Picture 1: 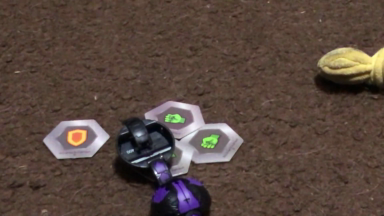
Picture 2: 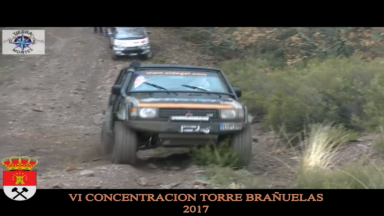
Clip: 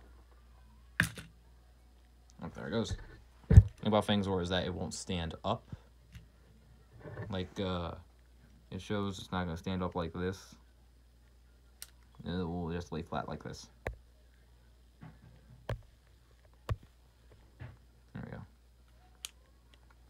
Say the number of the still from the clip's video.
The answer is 1